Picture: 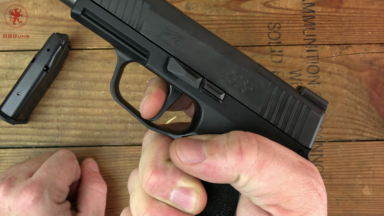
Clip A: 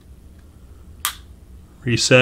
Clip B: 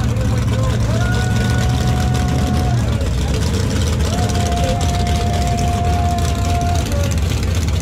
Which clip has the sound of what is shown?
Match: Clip A